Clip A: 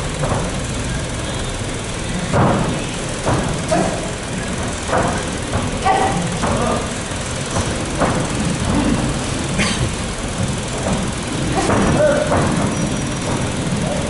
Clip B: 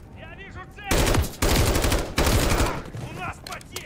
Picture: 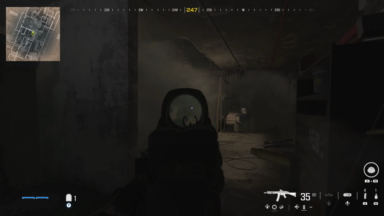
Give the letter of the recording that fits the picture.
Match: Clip B